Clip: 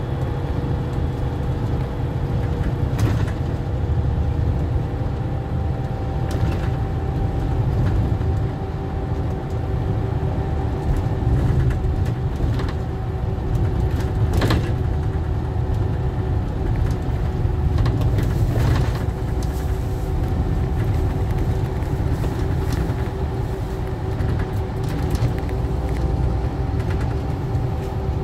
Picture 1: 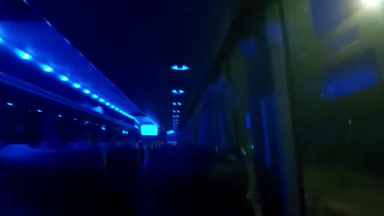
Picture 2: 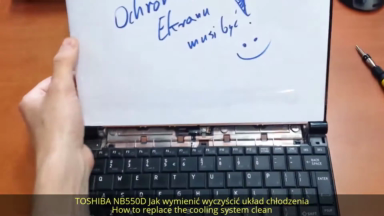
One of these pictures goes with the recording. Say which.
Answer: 1